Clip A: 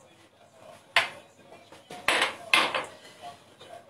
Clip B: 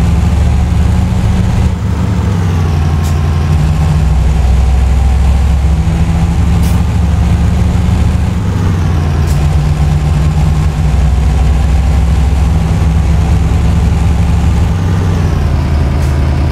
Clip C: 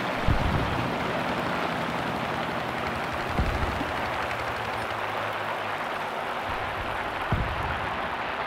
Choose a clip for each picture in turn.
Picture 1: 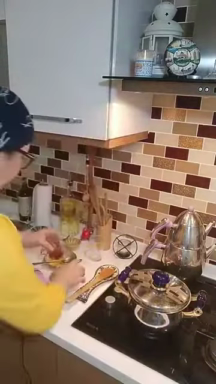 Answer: A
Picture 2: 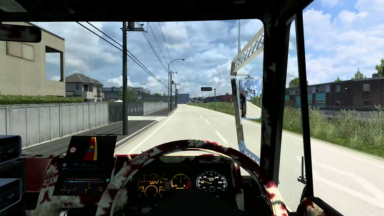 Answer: B